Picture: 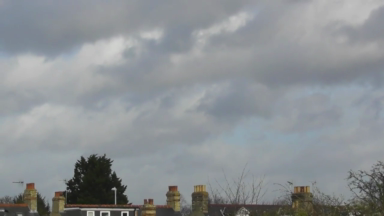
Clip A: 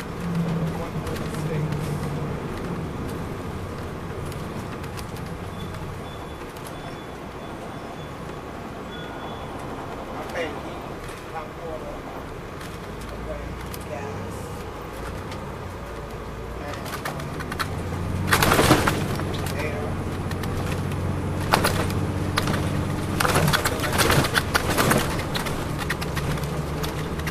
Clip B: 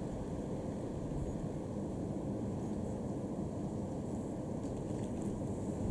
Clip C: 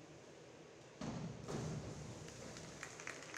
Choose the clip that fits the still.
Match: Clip B